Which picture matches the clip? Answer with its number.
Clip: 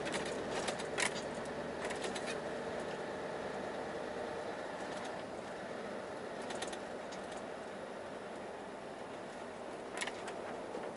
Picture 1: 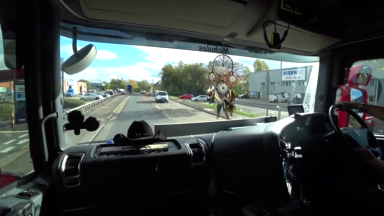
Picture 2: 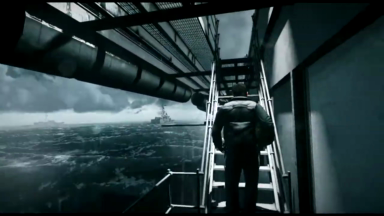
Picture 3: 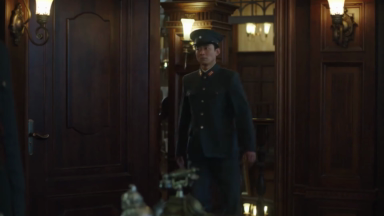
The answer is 1